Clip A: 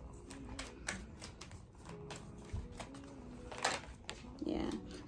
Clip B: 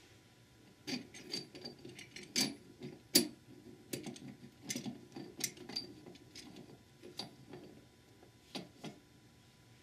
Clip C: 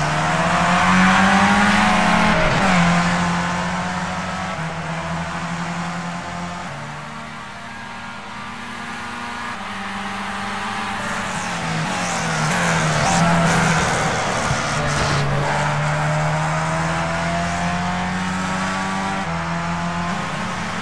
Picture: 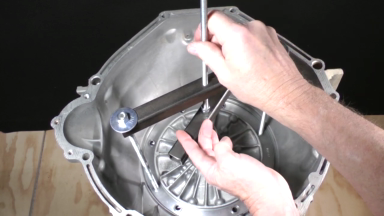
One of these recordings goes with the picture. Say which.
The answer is B